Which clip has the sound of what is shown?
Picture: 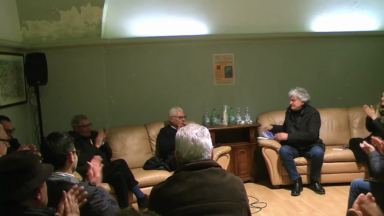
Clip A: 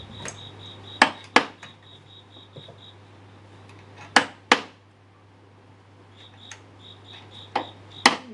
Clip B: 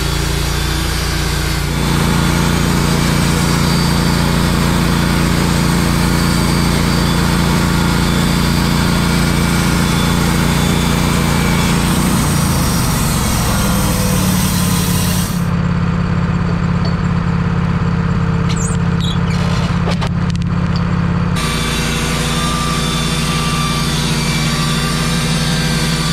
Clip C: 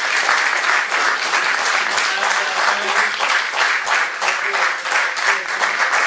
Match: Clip C